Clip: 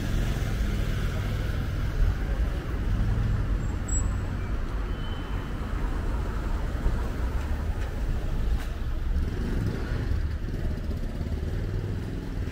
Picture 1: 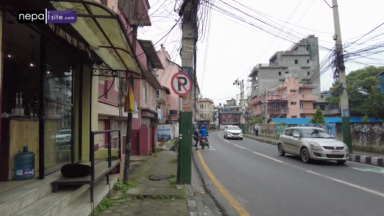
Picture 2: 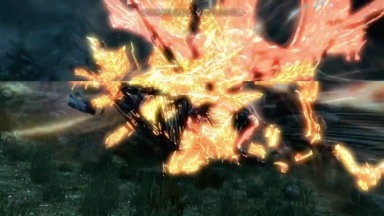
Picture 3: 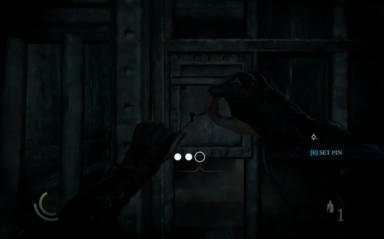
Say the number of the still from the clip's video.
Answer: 1